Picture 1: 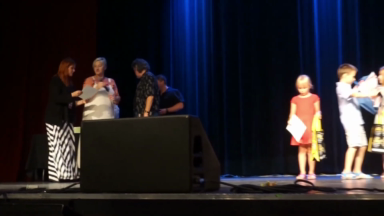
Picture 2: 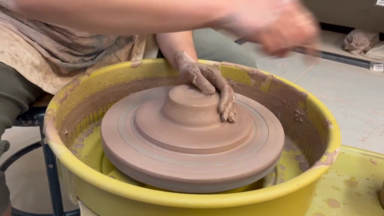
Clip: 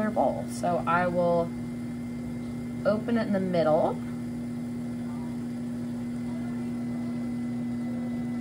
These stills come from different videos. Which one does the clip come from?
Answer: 2